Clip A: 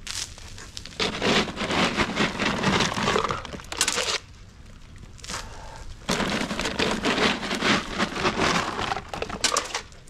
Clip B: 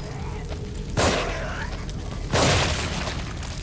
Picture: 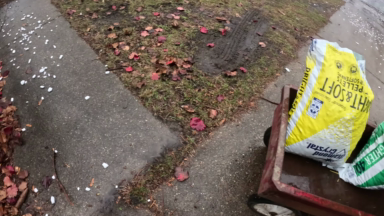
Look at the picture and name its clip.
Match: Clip A